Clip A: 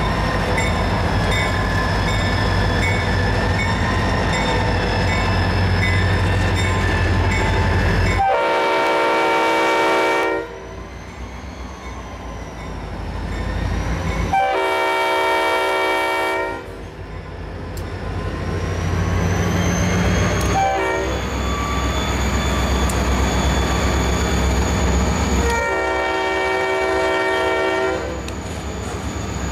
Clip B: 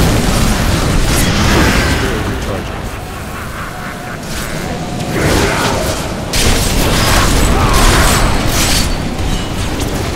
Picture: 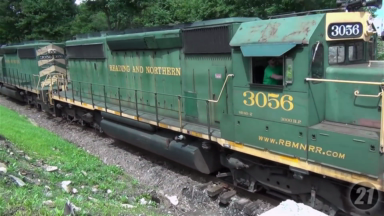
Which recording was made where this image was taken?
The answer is A